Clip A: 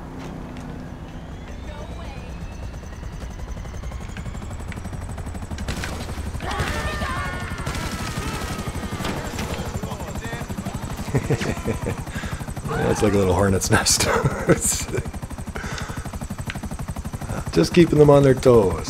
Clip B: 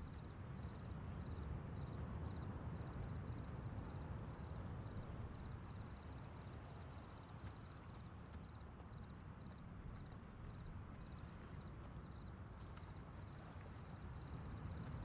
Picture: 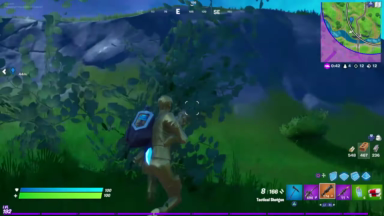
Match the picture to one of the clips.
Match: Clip B